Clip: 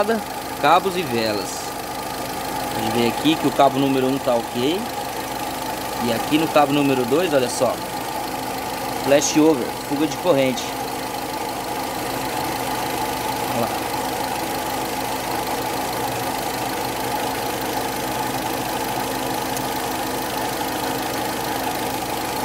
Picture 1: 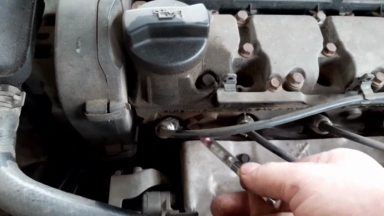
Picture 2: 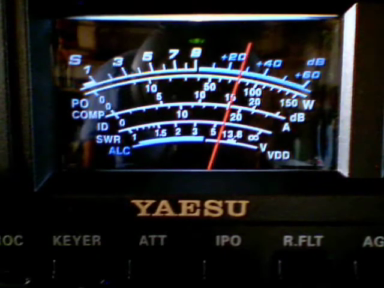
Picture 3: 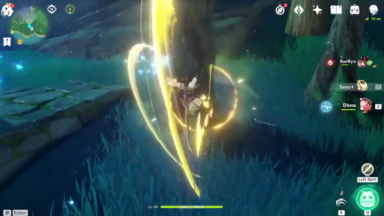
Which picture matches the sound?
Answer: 1